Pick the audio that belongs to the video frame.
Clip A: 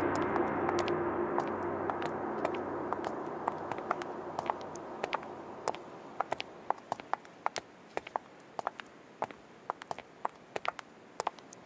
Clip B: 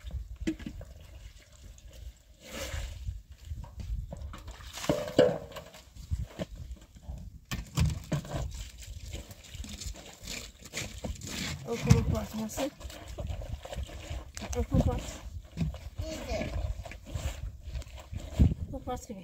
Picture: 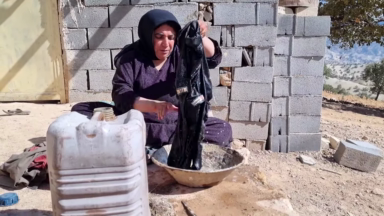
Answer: B